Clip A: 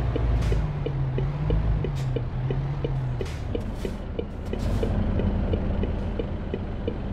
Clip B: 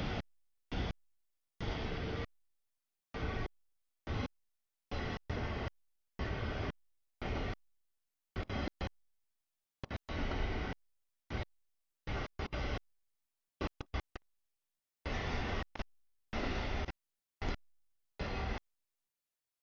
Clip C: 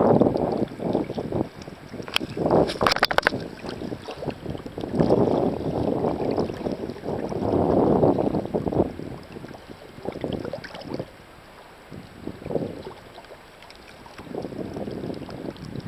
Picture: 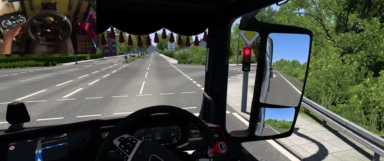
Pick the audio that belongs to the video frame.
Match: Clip A